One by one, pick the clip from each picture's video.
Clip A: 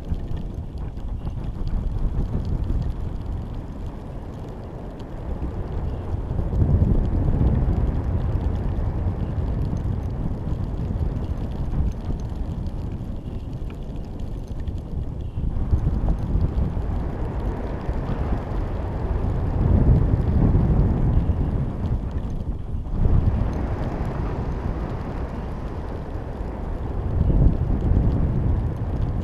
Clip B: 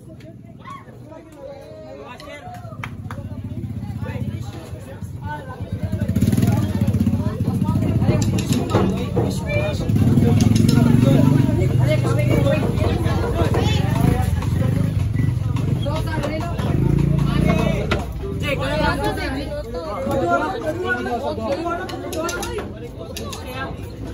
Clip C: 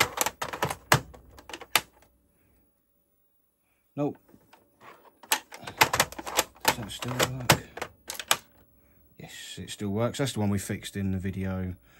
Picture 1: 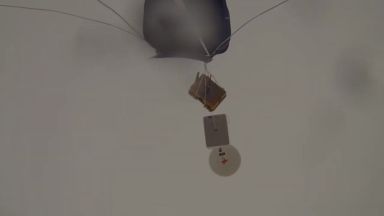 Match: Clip A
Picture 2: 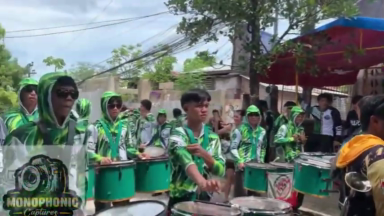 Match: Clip B